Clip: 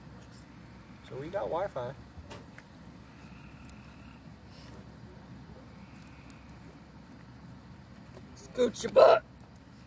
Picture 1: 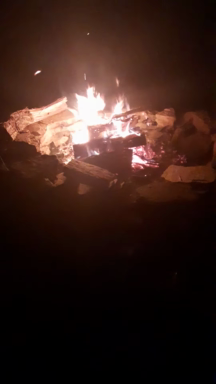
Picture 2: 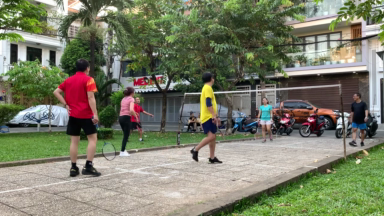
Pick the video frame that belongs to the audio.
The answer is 1